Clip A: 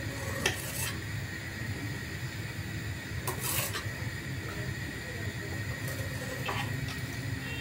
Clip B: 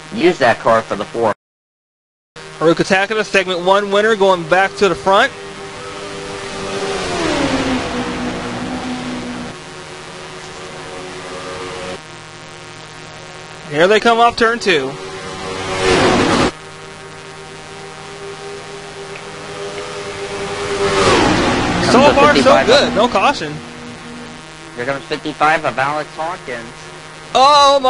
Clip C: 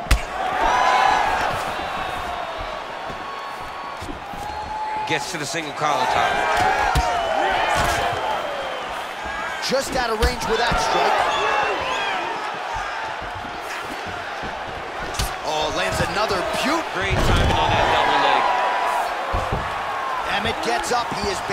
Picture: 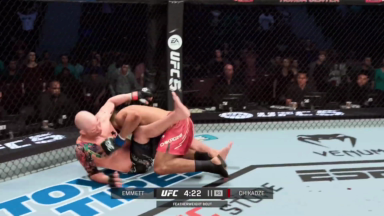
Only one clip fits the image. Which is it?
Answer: C